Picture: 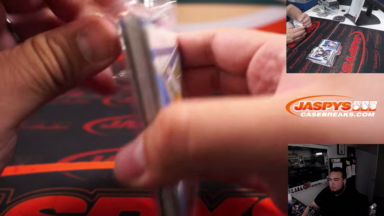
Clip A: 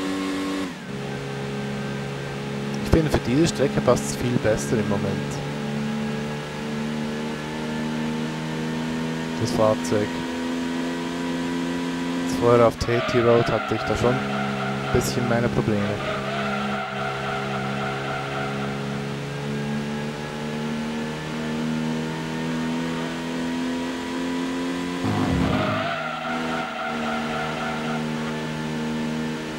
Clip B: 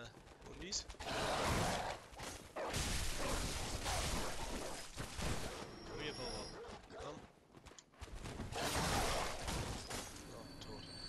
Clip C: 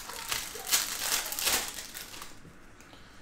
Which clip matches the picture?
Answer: C